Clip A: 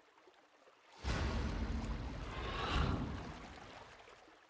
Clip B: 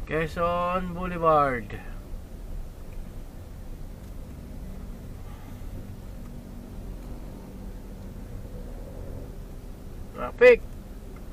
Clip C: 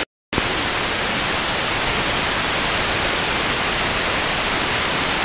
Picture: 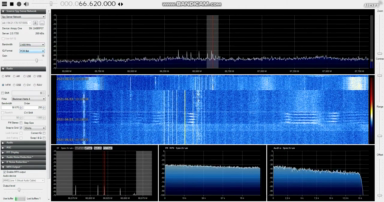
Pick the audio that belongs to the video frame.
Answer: C